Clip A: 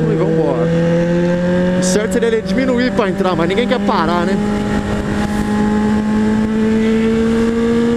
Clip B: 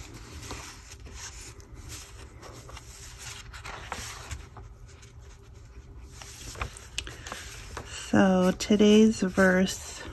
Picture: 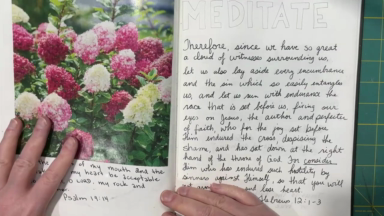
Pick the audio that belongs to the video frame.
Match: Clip B